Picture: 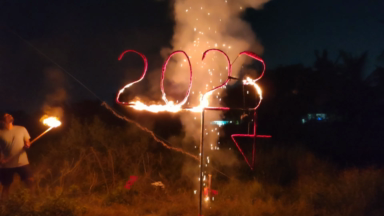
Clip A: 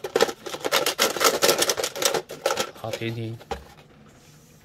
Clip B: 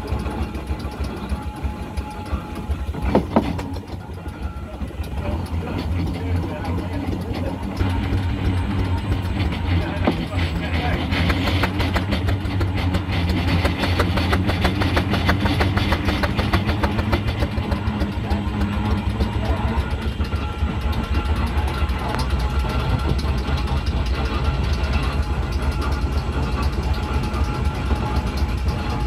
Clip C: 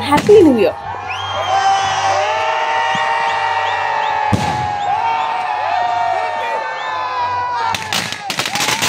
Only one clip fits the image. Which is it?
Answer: C